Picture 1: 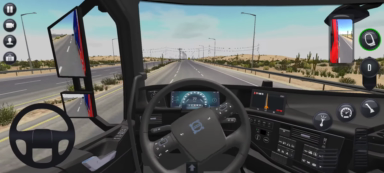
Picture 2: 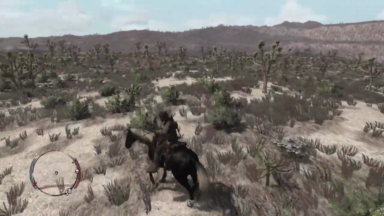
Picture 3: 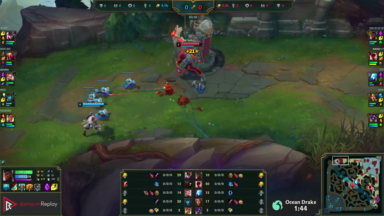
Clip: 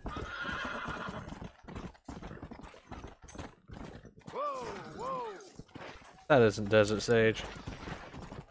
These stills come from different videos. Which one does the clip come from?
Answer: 2